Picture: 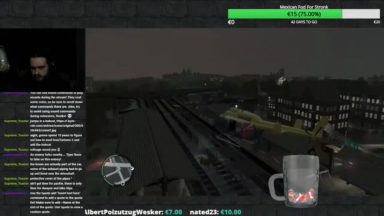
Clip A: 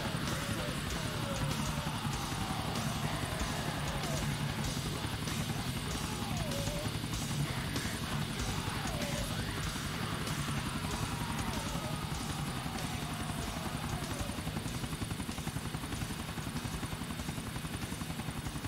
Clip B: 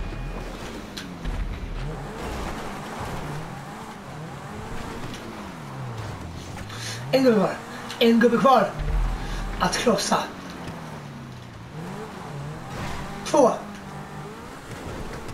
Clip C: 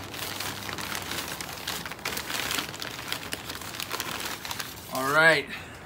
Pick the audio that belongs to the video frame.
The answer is A